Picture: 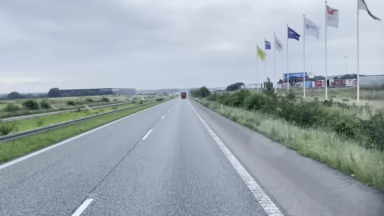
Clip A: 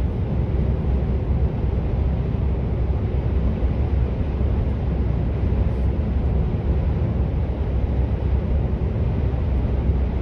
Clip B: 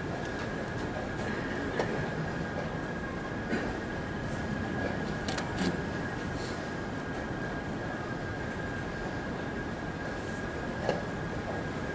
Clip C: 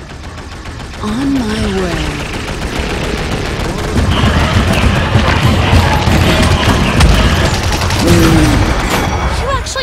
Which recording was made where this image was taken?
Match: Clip A